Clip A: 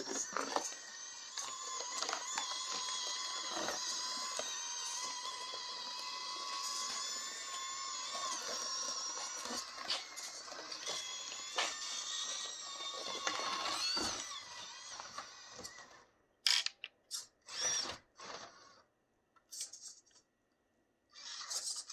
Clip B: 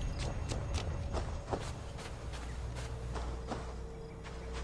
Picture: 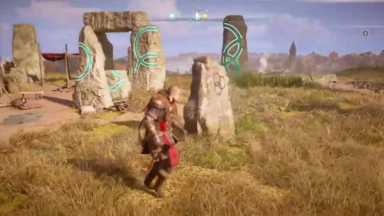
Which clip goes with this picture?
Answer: B